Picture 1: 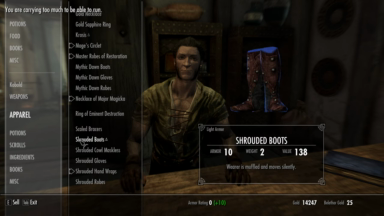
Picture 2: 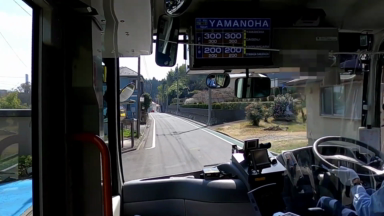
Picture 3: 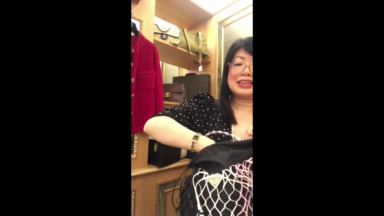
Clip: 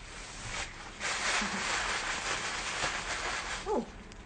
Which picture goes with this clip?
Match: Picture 3